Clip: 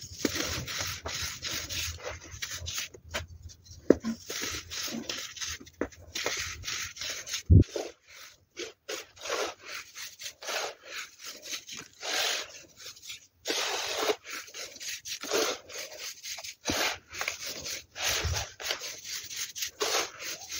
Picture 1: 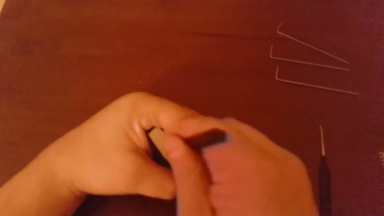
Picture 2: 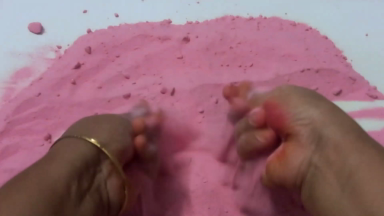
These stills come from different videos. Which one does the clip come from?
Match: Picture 2